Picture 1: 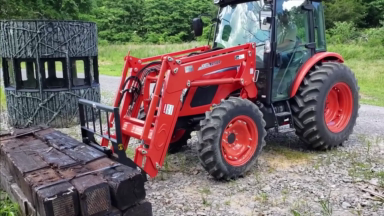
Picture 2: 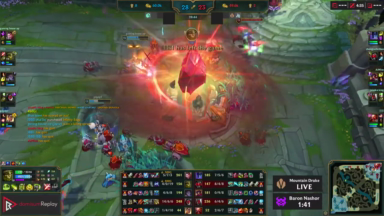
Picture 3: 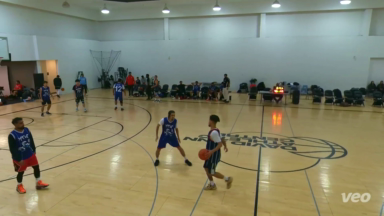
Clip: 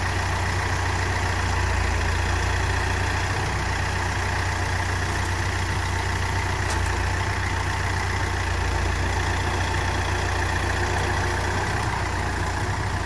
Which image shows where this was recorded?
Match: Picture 1